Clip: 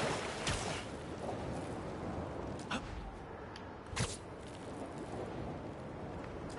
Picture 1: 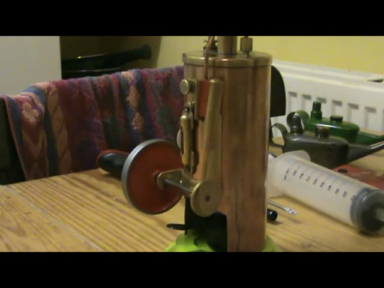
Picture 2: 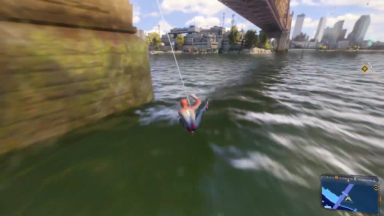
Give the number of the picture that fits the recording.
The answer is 2